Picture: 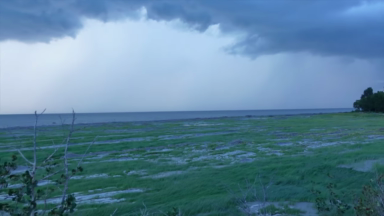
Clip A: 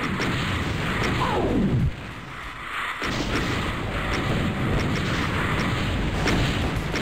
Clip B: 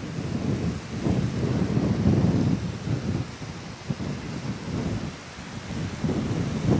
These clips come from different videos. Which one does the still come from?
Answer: B